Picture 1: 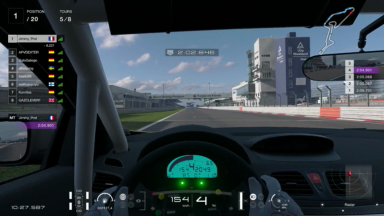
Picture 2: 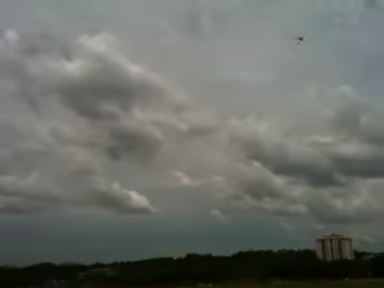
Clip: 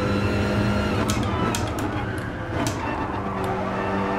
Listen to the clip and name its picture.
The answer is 1